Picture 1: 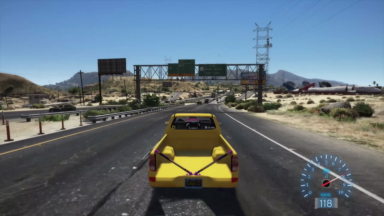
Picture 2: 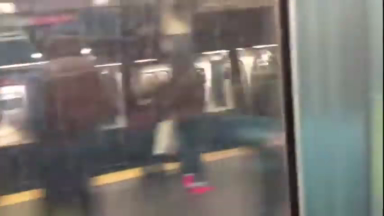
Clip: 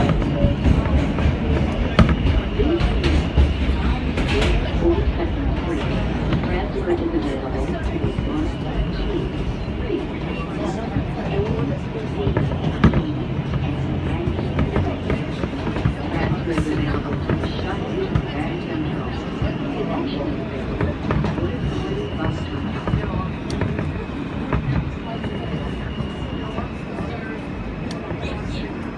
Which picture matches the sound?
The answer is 2